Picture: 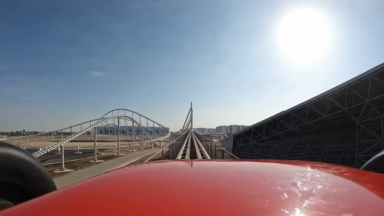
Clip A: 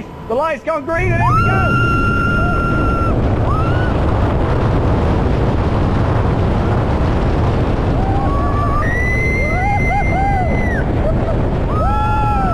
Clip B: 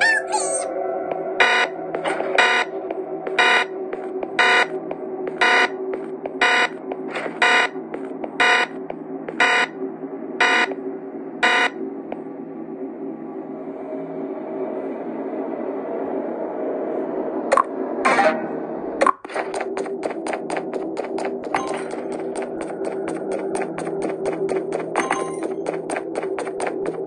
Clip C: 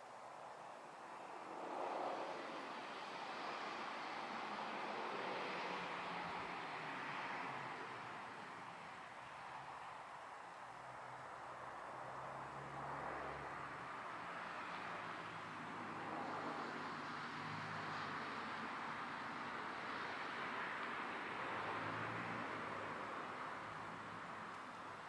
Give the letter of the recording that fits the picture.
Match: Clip A